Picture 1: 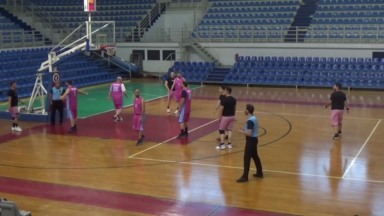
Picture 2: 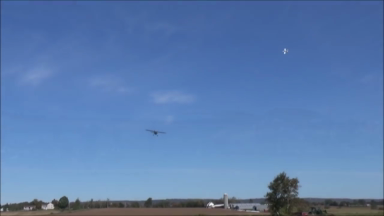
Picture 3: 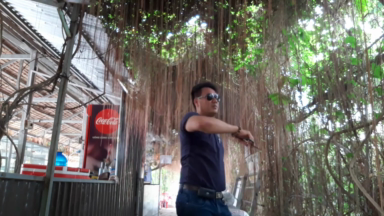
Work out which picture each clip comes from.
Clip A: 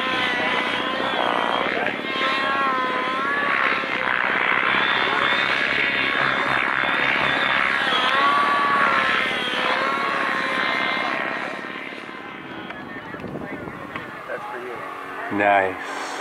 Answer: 2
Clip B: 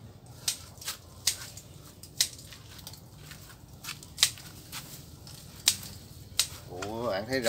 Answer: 3